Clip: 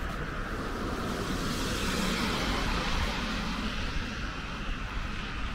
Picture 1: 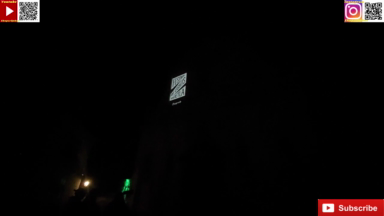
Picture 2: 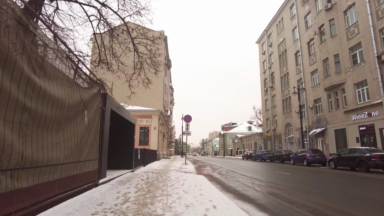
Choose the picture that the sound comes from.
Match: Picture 2